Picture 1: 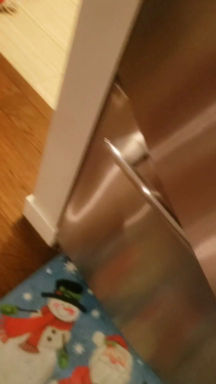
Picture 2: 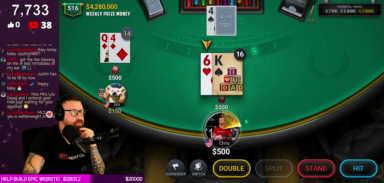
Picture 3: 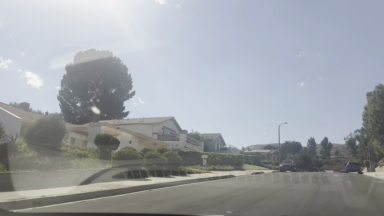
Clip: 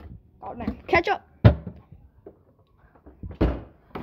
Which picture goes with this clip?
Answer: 1